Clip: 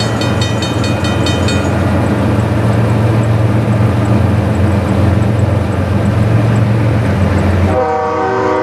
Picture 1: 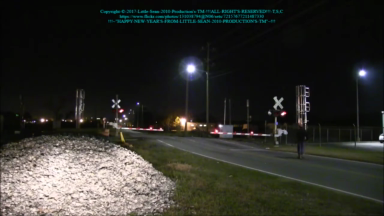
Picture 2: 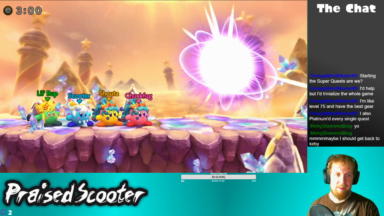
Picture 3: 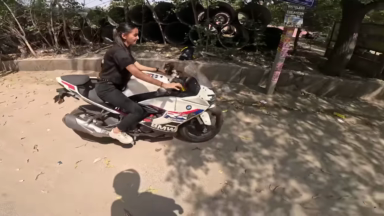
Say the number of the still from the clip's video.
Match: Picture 1